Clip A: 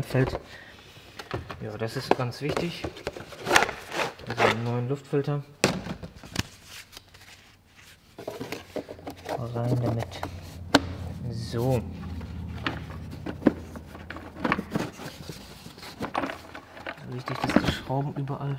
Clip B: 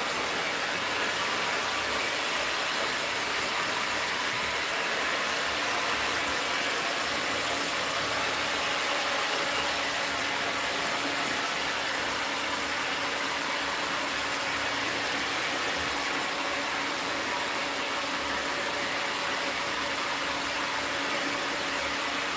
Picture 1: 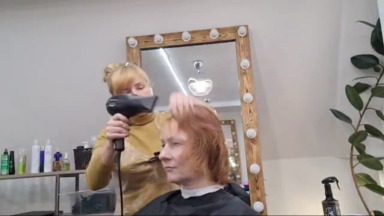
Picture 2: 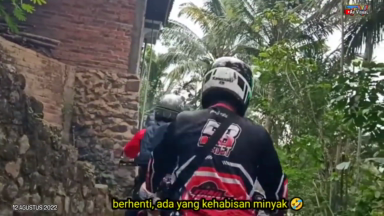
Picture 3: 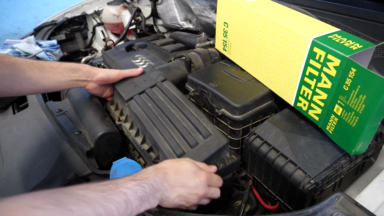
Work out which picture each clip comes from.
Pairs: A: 3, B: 1